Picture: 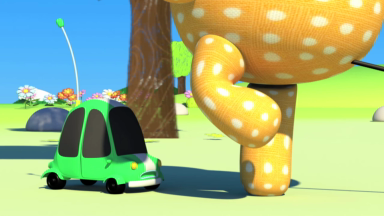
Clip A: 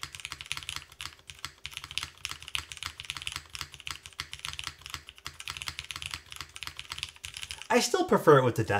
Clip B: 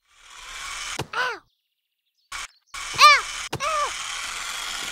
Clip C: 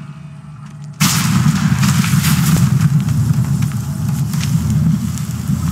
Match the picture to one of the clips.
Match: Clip B